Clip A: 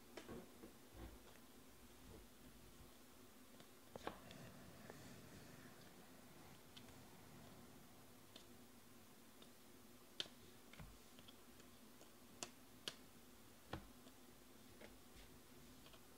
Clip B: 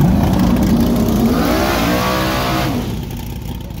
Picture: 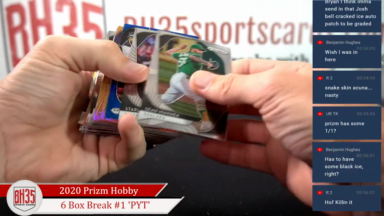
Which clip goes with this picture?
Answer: A